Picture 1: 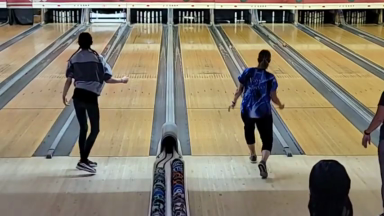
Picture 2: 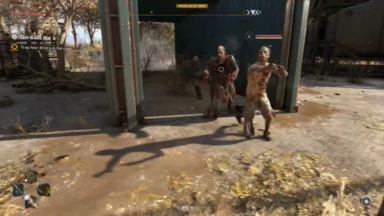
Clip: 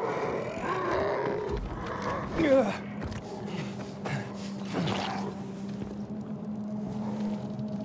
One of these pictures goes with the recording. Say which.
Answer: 2